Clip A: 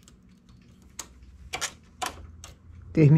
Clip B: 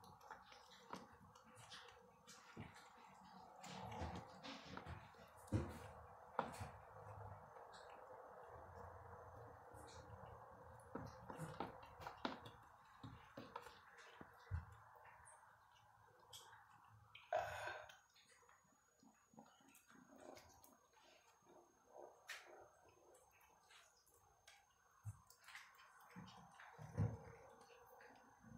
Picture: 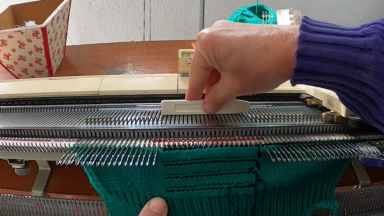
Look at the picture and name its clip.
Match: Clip A